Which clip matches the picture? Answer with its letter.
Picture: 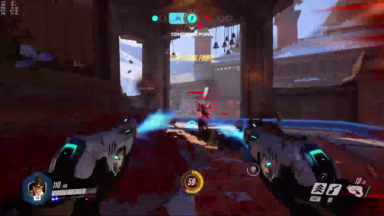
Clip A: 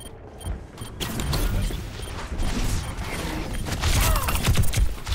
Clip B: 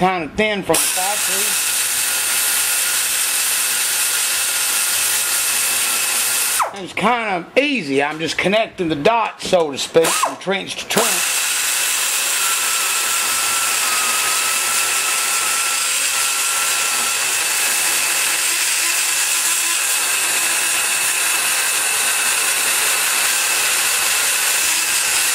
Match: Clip A